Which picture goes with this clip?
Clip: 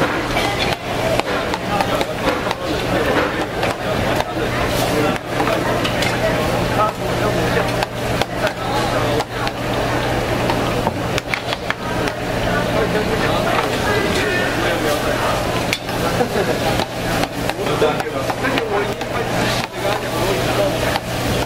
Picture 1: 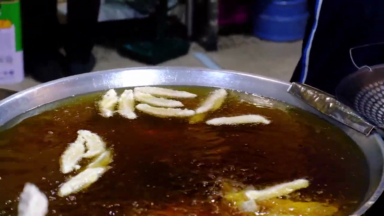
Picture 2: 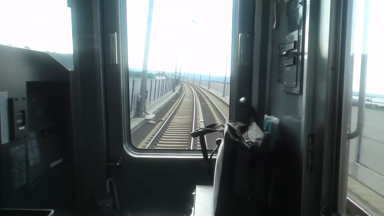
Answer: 1